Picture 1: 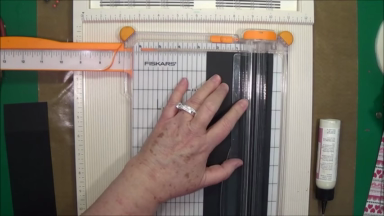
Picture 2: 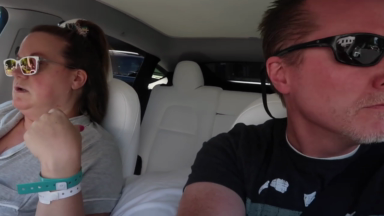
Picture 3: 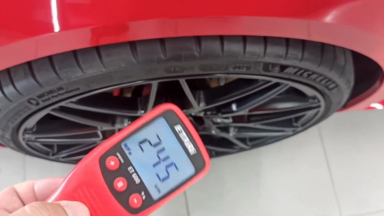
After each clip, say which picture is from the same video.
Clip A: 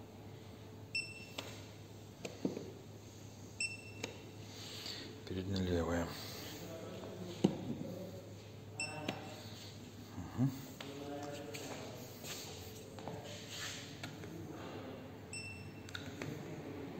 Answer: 3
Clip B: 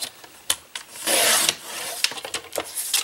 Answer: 1